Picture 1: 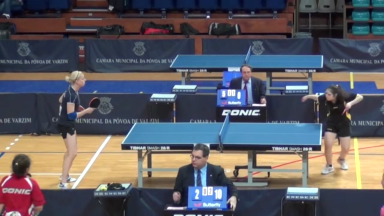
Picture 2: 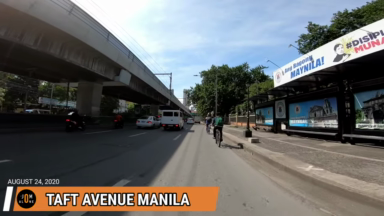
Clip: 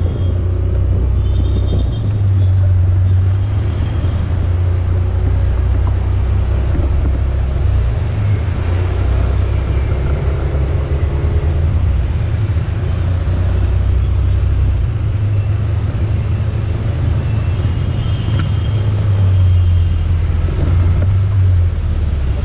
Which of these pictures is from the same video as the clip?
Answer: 2